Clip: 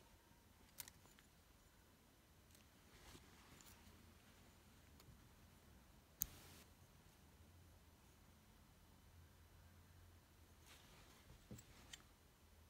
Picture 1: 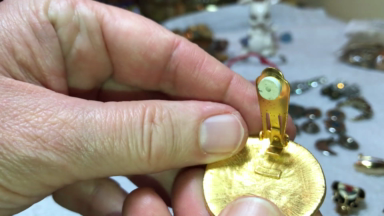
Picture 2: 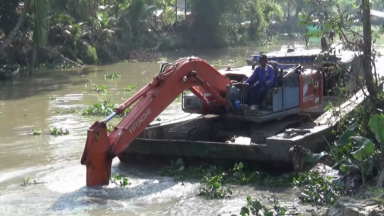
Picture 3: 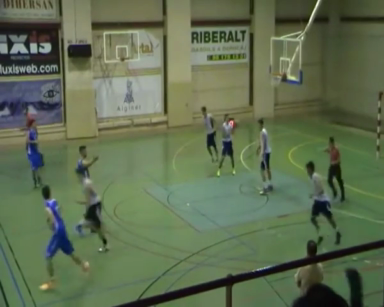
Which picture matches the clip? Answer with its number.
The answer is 1